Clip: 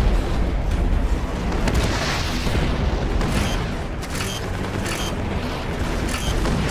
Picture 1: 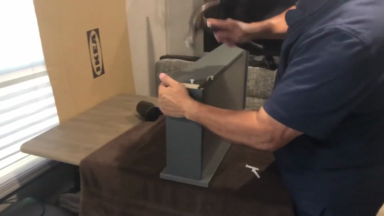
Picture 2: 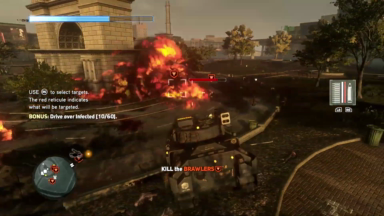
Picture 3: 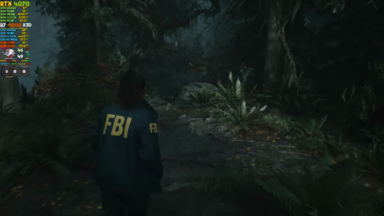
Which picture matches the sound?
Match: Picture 2